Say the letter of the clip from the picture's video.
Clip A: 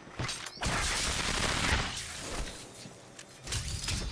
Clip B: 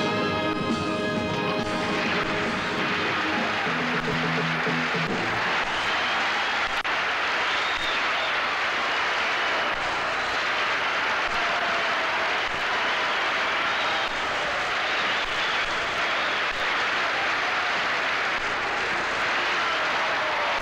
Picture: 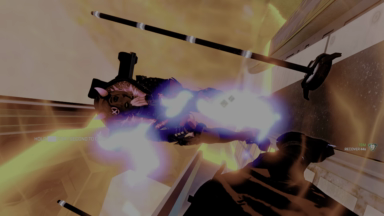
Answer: A